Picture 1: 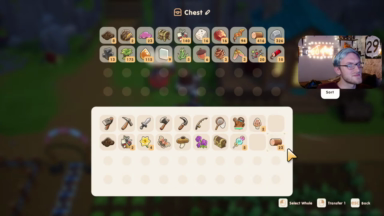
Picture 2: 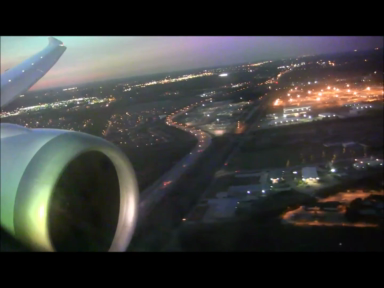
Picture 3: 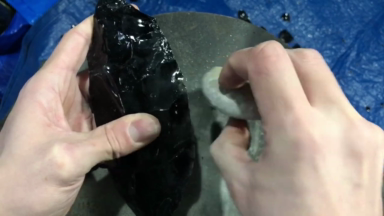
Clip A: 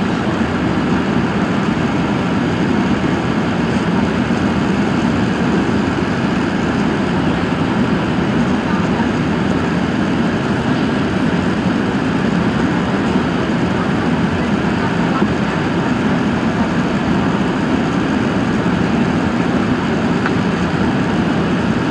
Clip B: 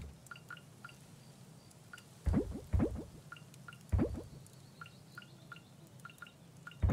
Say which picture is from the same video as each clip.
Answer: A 2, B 1